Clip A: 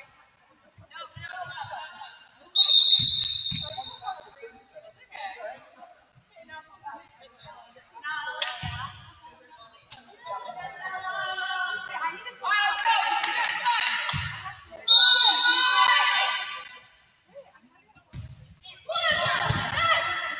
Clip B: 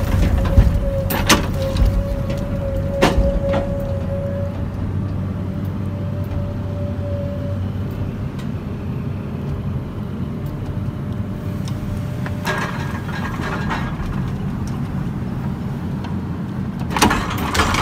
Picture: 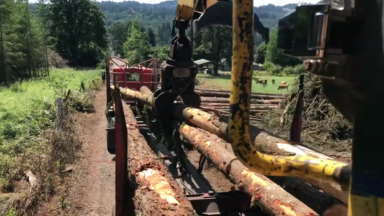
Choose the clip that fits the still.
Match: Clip B